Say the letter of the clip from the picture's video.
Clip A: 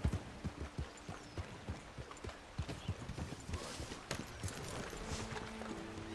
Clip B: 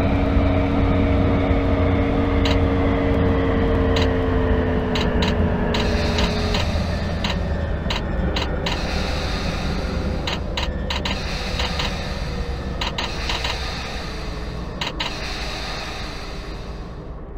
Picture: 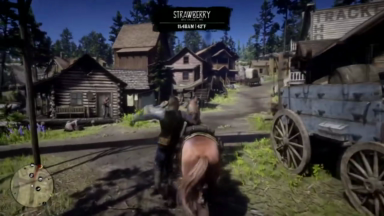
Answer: A